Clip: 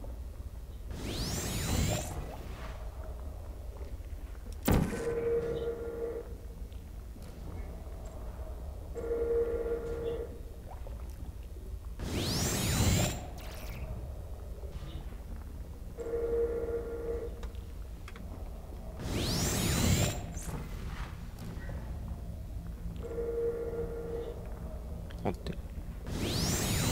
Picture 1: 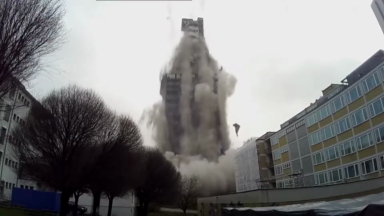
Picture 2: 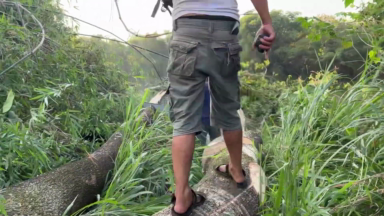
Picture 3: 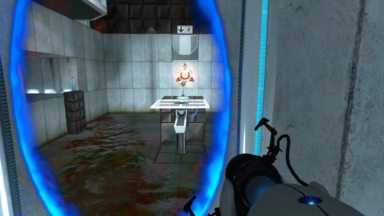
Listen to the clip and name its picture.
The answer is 3